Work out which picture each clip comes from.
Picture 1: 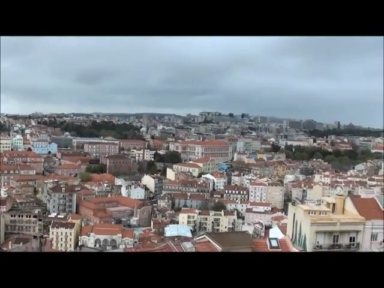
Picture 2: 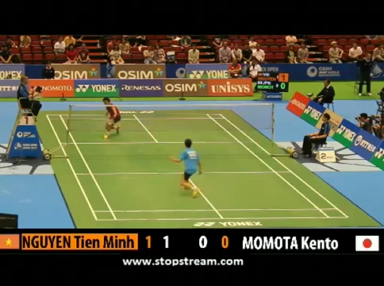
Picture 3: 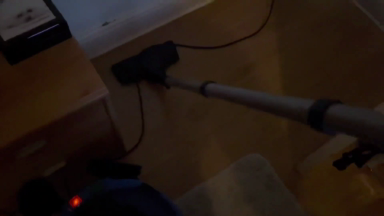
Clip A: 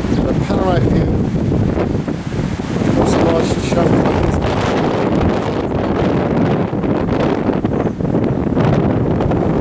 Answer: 1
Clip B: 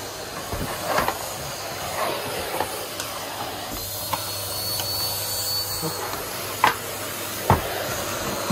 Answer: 3